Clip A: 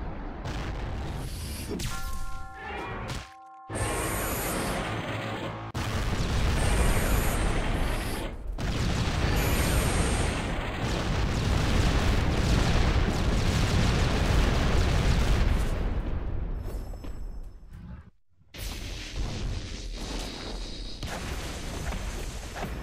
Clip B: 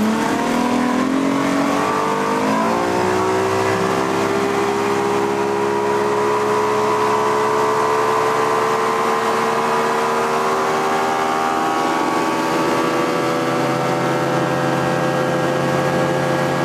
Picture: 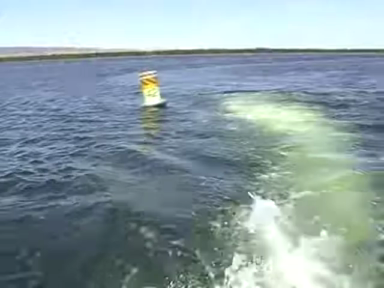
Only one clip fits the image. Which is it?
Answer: B